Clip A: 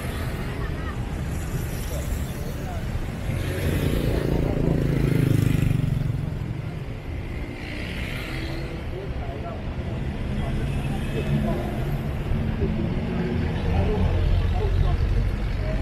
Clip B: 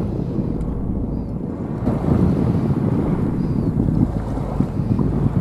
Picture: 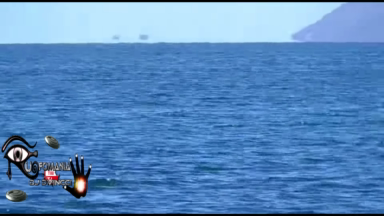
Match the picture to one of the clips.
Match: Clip B